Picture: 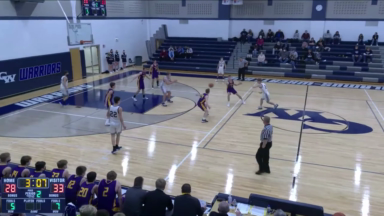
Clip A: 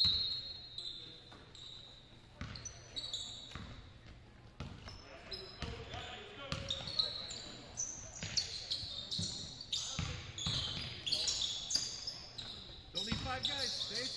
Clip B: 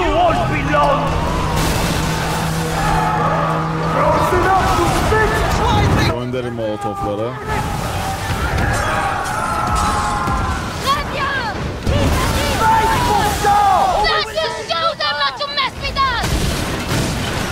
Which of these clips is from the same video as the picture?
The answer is A